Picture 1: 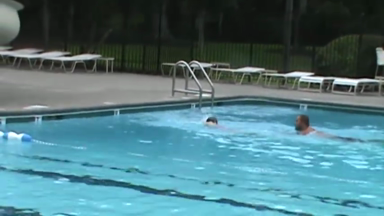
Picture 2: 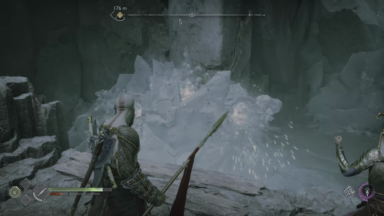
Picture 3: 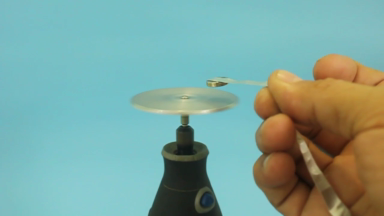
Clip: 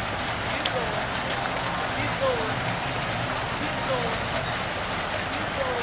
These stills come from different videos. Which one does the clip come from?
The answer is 1